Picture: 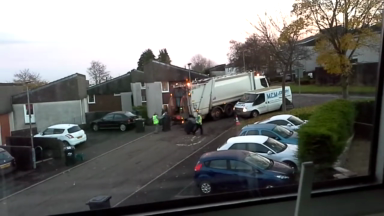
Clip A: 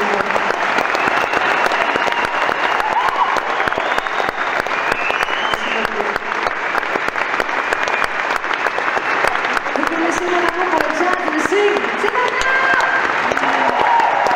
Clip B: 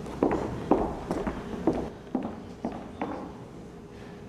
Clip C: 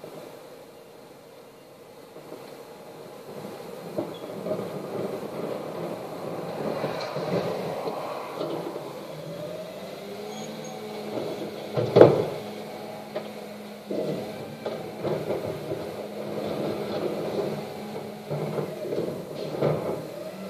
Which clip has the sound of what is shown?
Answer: C